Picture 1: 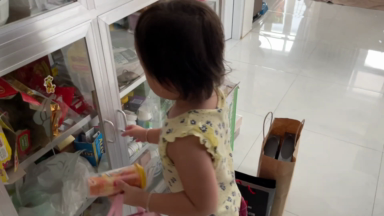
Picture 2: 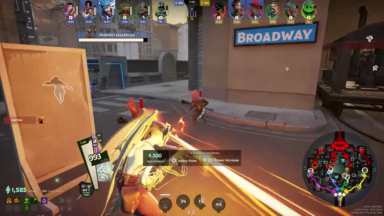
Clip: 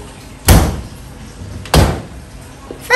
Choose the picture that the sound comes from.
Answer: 1